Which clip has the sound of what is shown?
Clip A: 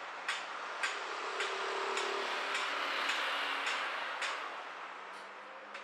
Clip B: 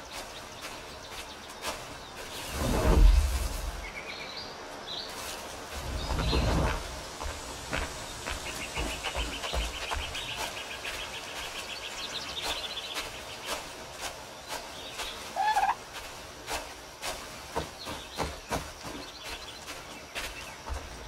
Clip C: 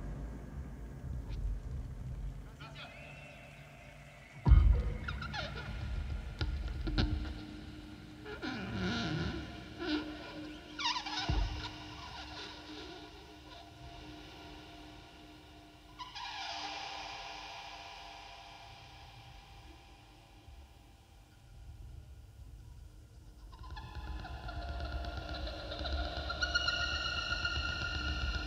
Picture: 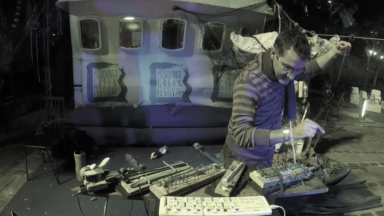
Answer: C